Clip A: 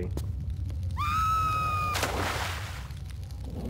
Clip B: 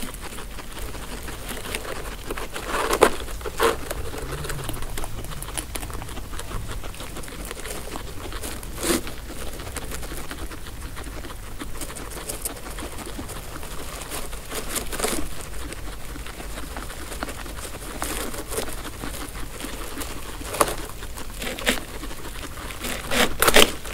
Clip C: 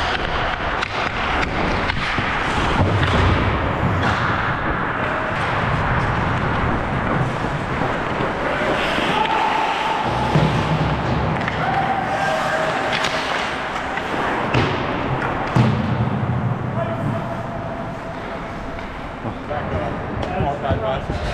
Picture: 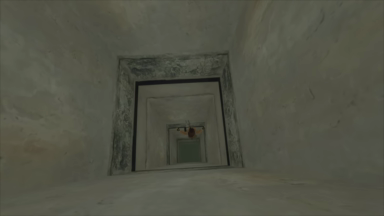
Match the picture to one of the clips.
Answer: A